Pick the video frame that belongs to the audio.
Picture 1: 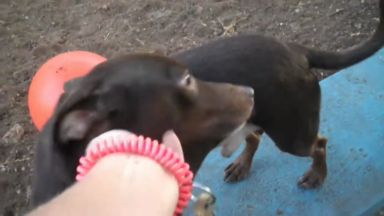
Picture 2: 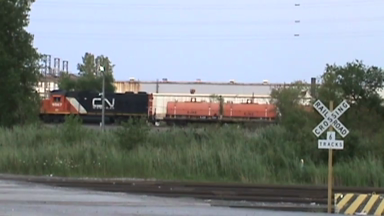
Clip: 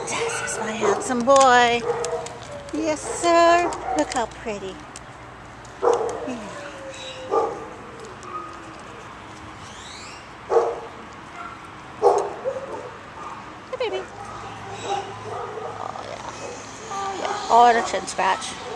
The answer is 1